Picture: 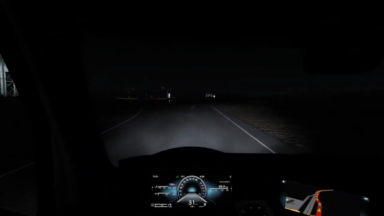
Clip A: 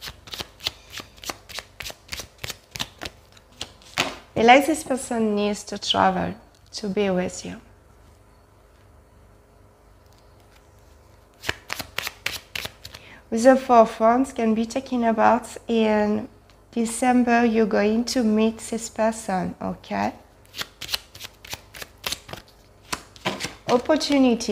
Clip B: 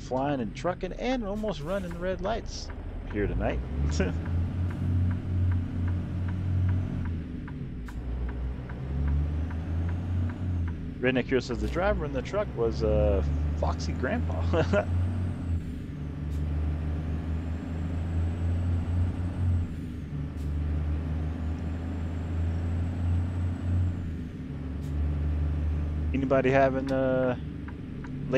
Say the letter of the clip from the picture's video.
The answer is B